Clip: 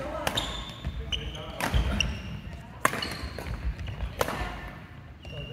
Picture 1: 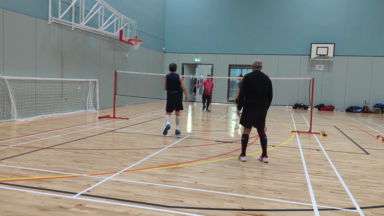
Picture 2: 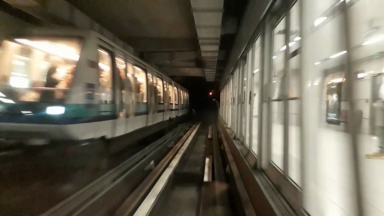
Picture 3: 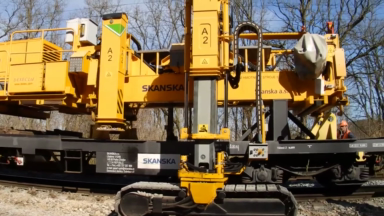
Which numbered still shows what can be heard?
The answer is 1